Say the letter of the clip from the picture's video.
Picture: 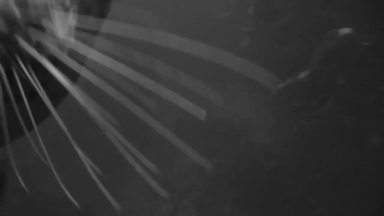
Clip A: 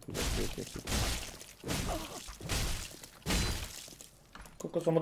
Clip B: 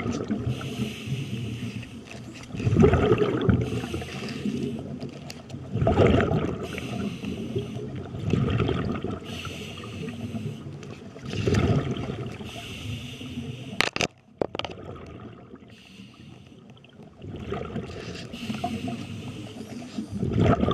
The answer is B